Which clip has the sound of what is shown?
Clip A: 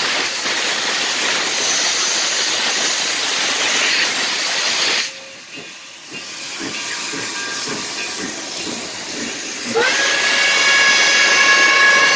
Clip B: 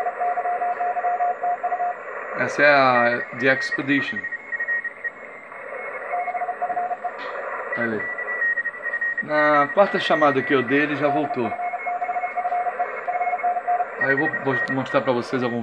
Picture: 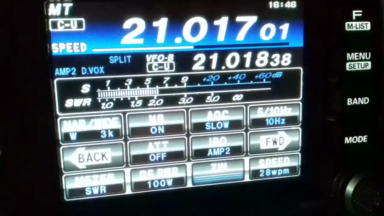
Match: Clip B